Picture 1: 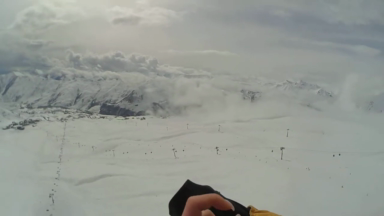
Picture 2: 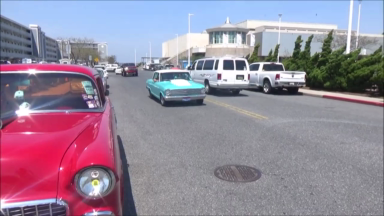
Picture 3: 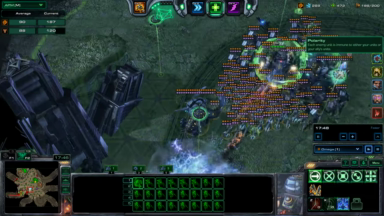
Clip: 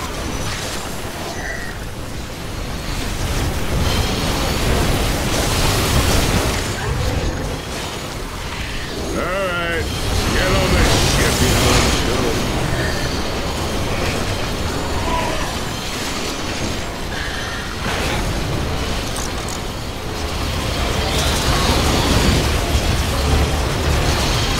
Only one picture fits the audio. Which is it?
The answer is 3